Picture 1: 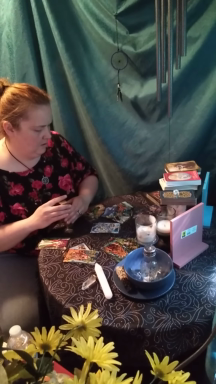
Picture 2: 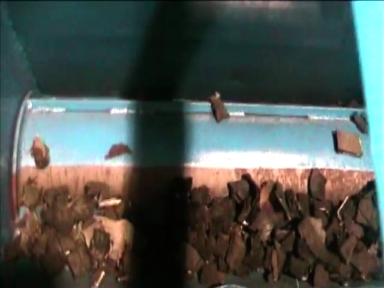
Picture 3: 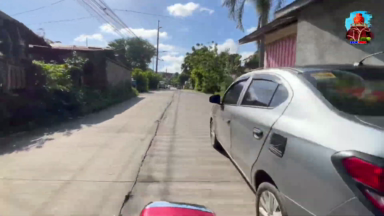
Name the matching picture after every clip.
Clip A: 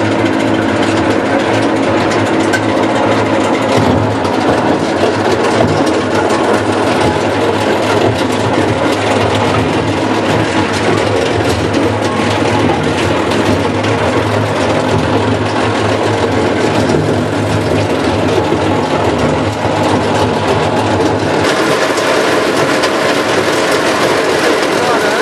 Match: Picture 2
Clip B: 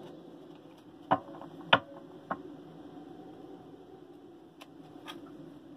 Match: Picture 1